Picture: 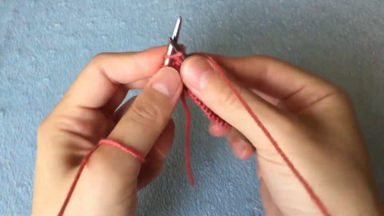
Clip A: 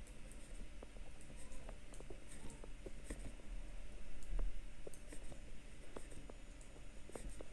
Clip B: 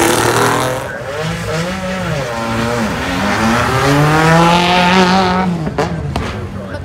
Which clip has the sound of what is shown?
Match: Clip A